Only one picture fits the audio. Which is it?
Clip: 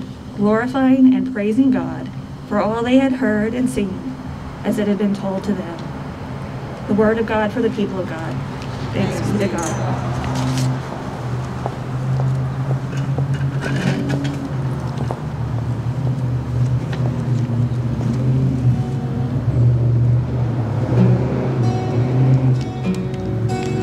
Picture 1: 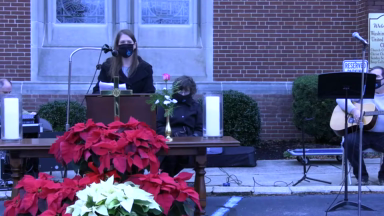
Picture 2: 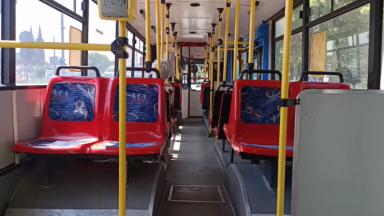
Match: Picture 1